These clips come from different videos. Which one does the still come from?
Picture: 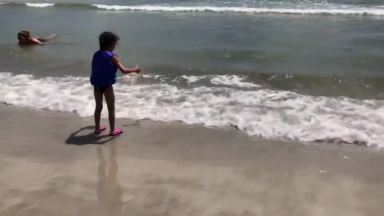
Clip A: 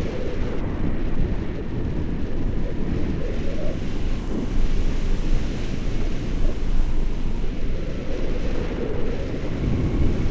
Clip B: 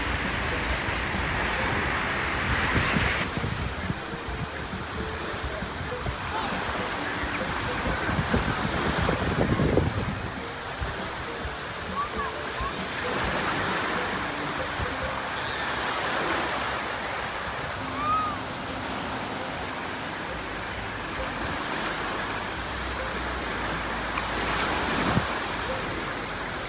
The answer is B